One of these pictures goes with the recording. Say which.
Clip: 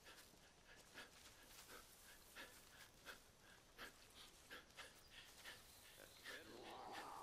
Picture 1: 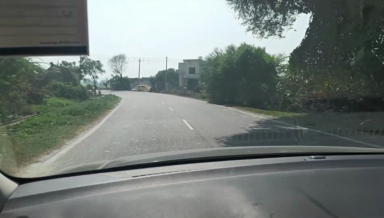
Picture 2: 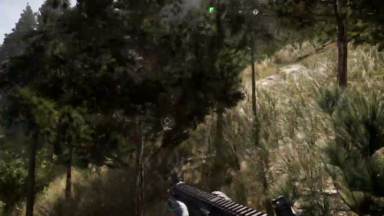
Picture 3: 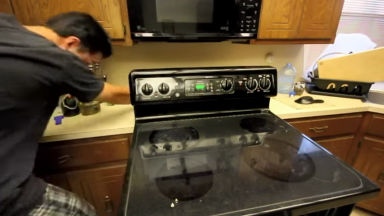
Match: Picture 2